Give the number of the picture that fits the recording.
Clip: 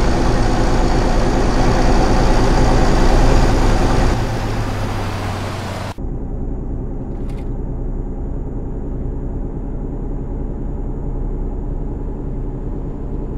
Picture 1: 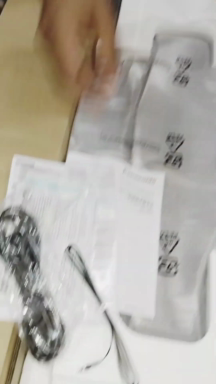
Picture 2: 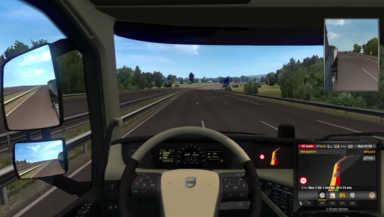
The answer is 2